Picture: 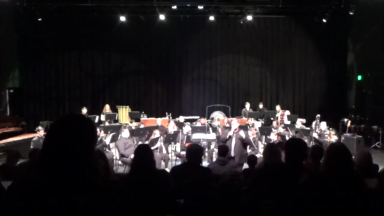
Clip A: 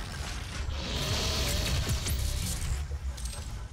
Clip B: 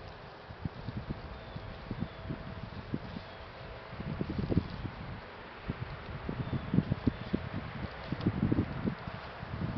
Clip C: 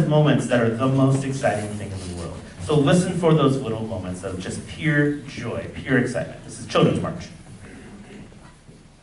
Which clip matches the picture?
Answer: C